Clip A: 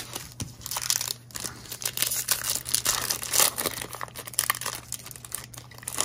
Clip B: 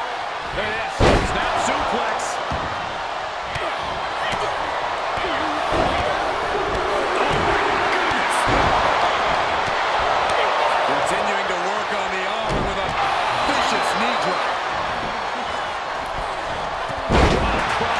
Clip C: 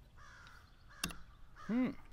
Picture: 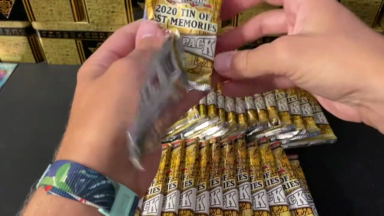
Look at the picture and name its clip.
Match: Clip A